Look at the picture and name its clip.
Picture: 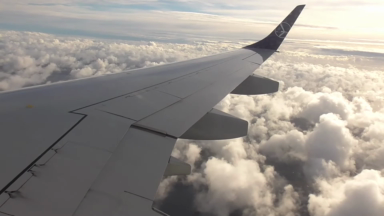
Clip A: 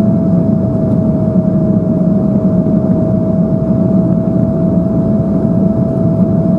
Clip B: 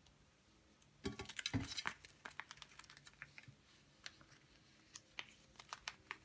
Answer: A